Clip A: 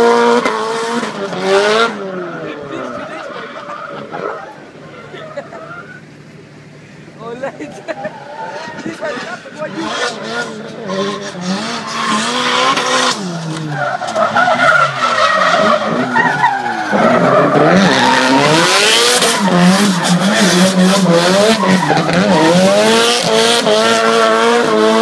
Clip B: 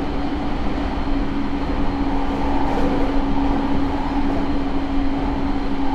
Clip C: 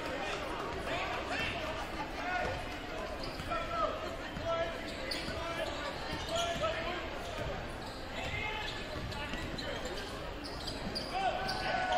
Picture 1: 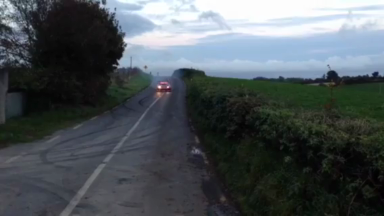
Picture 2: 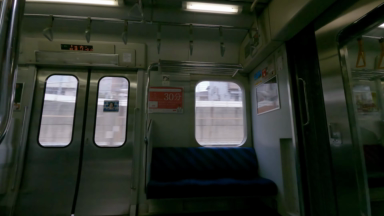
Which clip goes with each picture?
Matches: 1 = A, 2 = B